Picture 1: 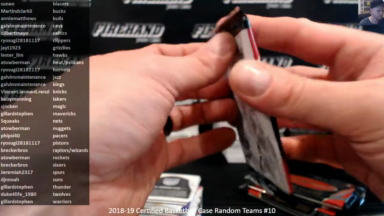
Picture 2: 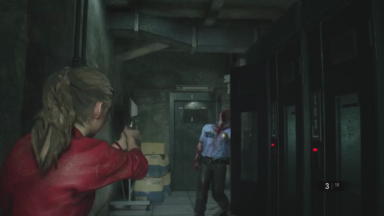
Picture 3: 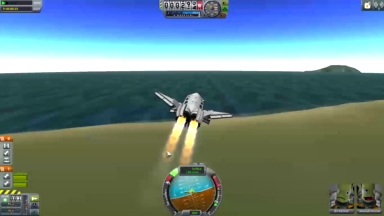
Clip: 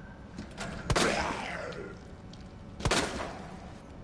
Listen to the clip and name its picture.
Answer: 2